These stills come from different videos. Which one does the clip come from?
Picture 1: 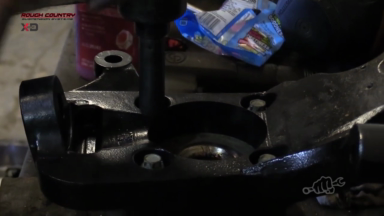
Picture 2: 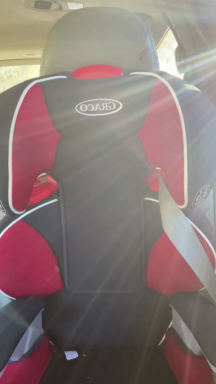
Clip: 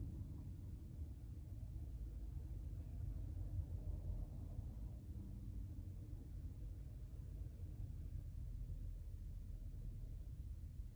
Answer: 2